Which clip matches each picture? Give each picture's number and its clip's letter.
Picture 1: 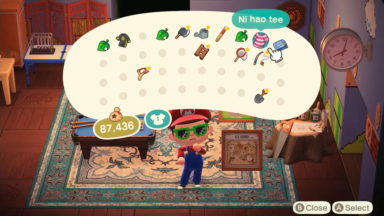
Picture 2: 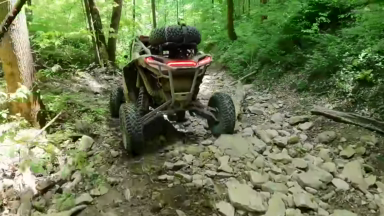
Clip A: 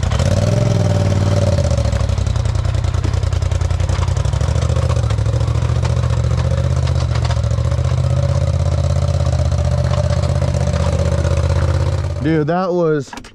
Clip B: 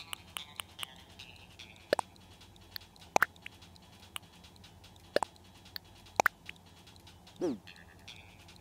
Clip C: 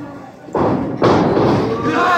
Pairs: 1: B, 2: A